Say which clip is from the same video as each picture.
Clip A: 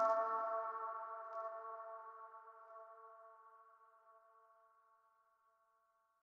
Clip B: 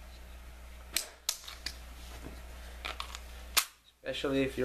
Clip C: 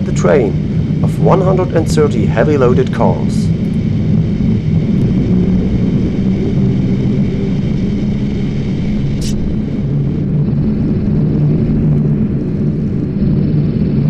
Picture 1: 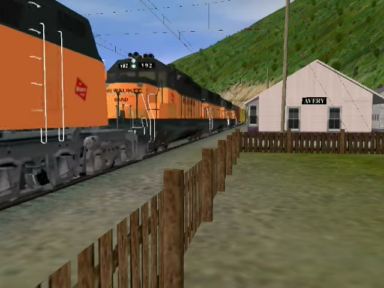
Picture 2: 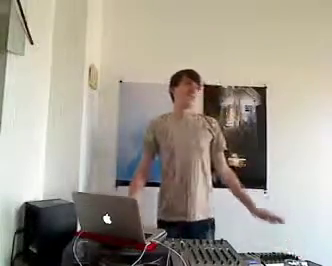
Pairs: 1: C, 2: A